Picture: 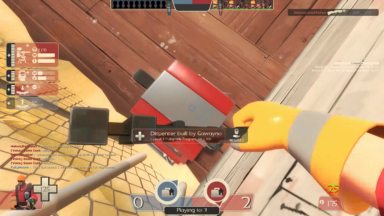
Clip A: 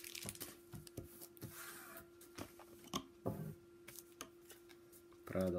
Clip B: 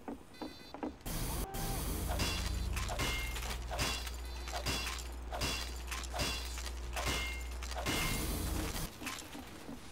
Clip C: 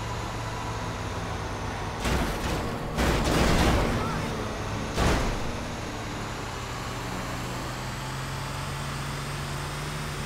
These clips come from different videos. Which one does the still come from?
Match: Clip B